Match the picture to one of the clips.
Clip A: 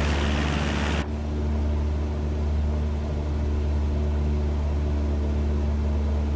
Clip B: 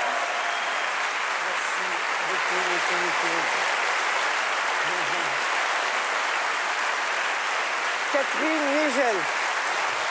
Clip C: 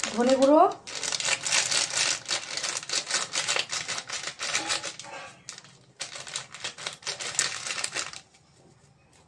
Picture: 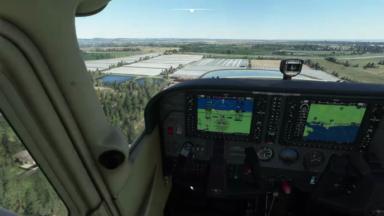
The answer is A